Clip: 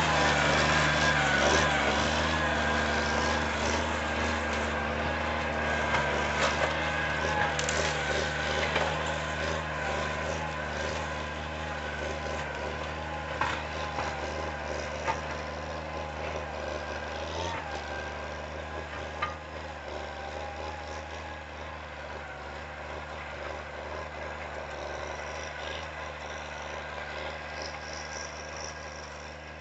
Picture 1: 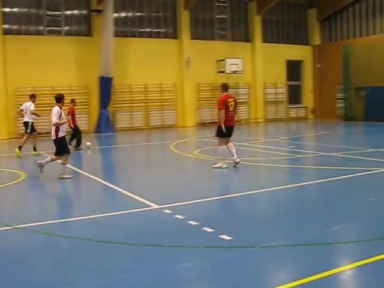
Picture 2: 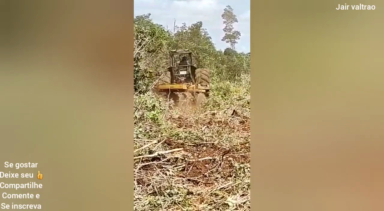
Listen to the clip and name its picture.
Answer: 2